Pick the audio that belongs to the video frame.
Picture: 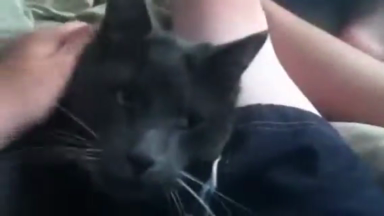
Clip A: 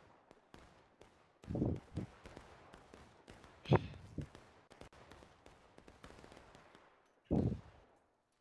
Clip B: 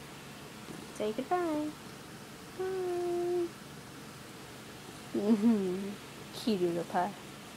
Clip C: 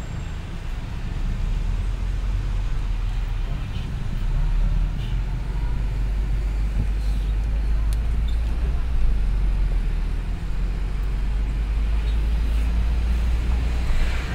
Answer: B